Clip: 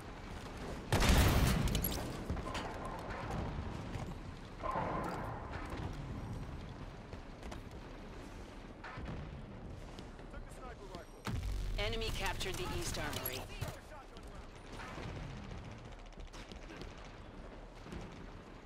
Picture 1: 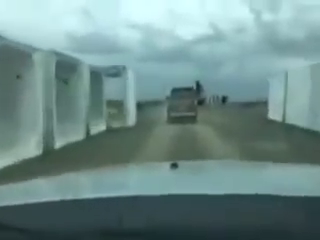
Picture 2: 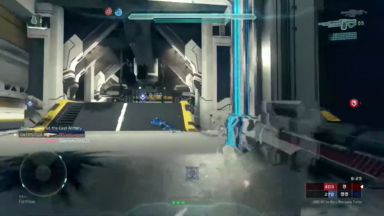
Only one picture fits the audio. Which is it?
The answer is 2